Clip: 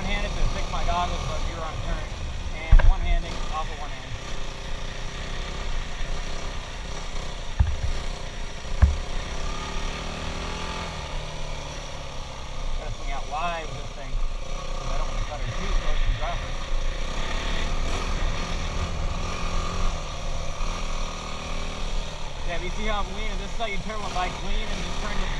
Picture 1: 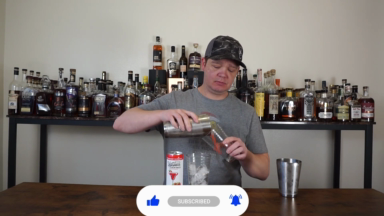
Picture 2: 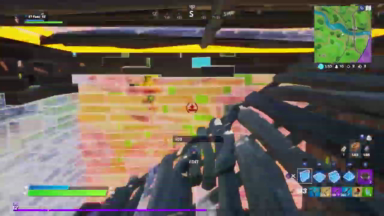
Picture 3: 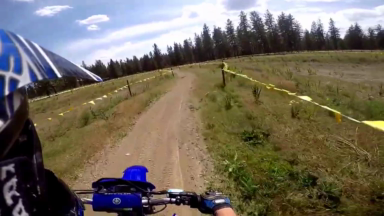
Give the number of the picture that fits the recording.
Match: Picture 3